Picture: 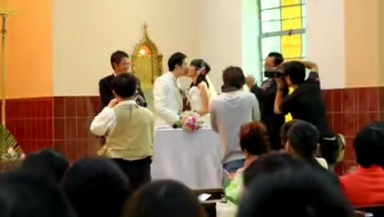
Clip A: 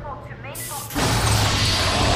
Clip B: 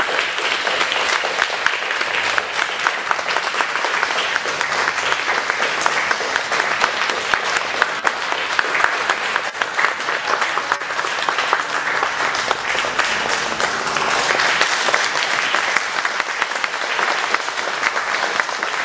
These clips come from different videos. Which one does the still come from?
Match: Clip B